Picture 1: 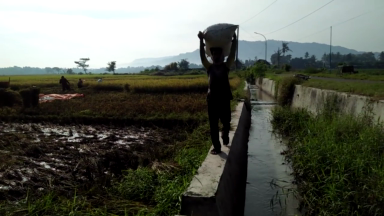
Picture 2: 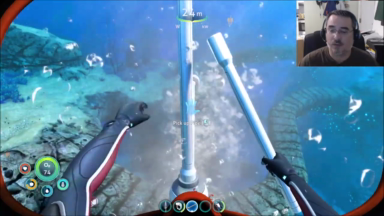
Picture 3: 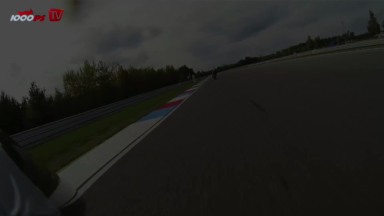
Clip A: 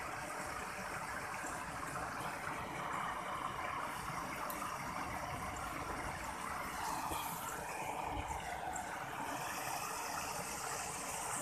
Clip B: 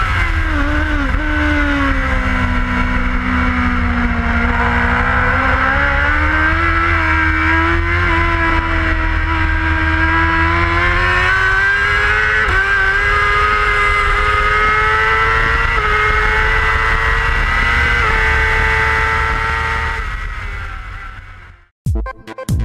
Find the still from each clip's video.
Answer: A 1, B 3